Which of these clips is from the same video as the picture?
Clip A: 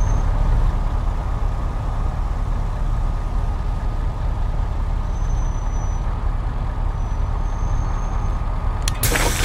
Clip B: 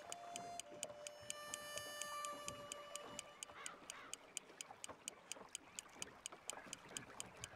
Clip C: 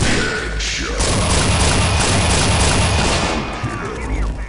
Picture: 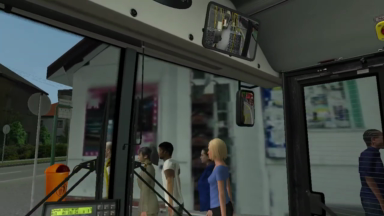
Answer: A